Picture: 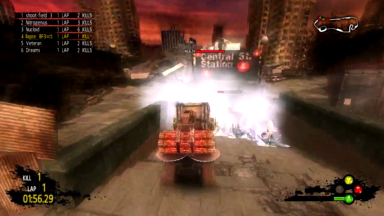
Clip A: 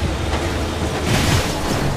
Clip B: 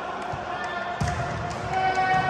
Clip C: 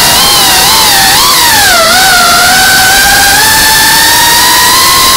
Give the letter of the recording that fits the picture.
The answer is A